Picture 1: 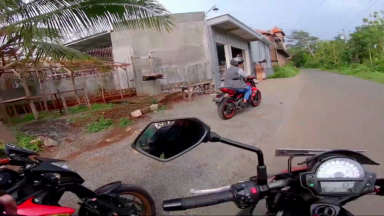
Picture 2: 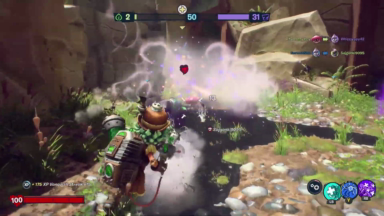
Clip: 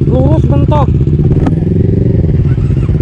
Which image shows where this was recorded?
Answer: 1